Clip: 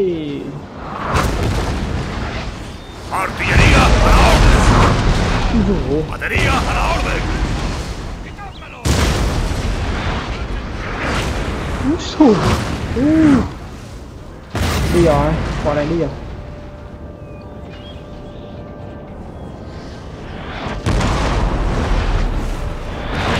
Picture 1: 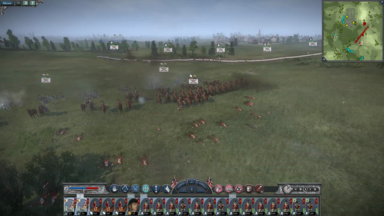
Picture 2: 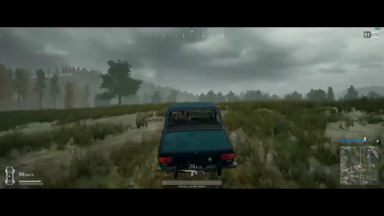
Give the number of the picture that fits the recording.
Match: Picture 1